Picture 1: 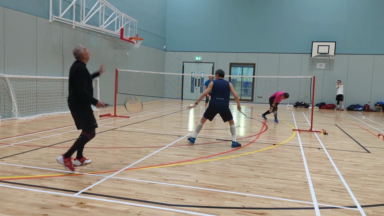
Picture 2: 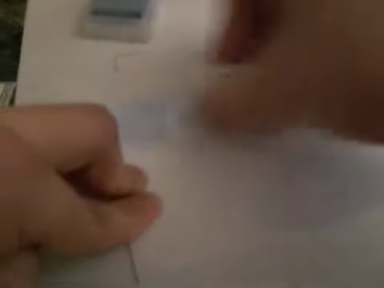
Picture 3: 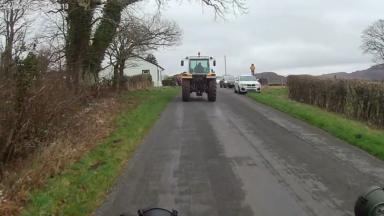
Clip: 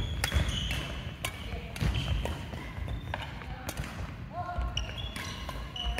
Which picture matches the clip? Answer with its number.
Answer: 1